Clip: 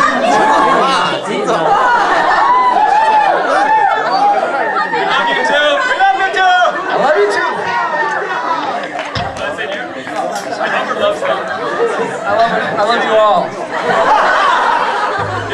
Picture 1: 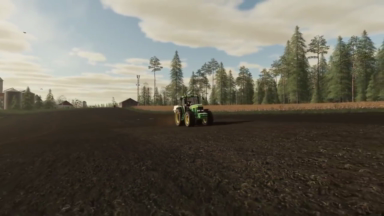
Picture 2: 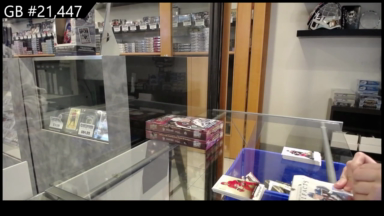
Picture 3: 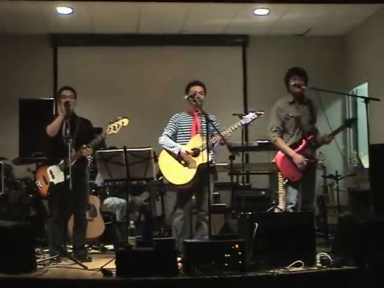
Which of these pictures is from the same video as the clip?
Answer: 3